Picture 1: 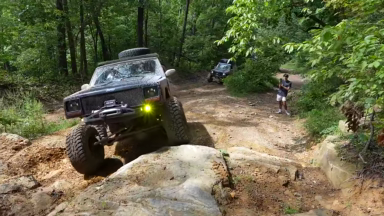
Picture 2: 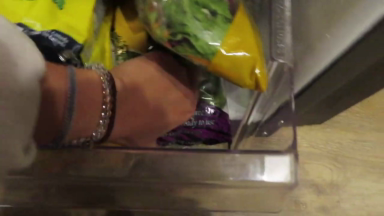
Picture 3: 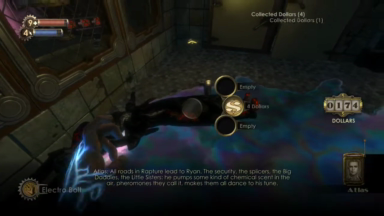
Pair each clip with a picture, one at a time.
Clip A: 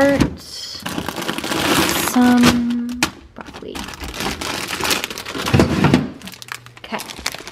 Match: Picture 2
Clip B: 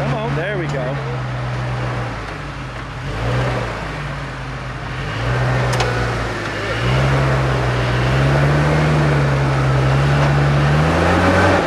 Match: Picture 1